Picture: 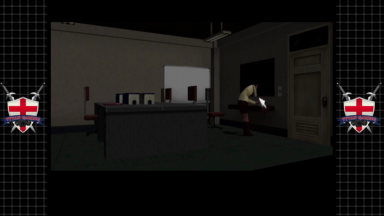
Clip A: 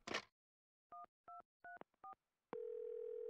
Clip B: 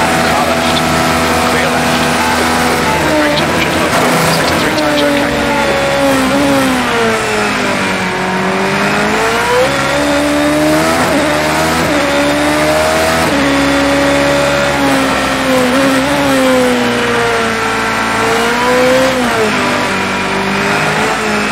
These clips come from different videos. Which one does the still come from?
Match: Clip A